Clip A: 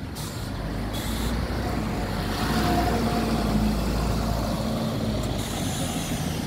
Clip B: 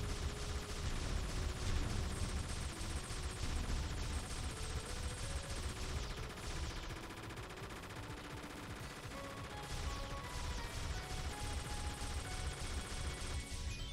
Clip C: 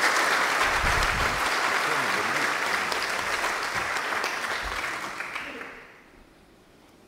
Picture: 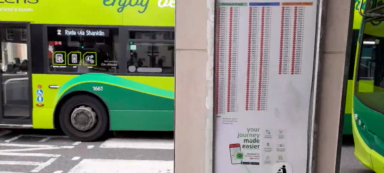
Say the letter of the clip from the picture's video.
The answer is A